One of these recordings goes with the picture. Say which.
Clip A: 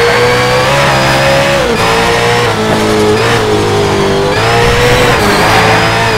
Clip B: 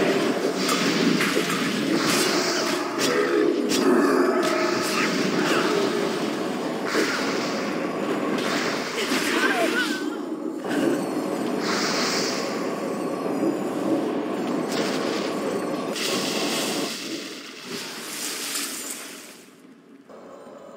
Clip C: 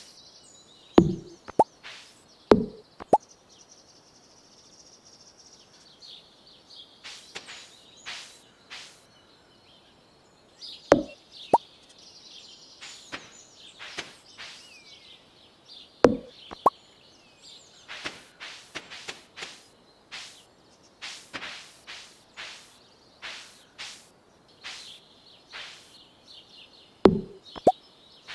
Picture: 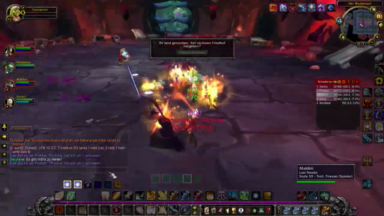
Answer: B